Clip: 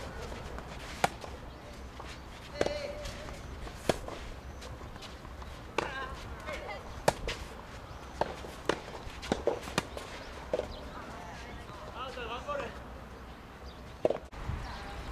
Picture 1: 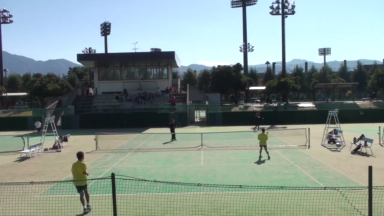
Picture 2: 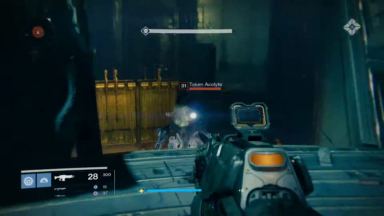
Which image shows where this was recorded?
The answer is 1